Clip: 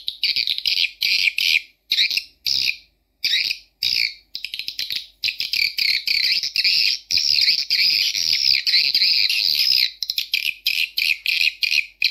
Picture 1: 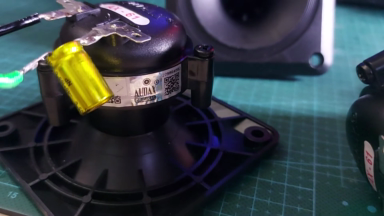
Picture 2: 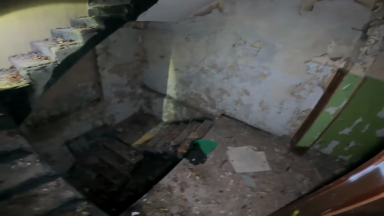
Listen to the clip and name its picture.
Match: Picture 1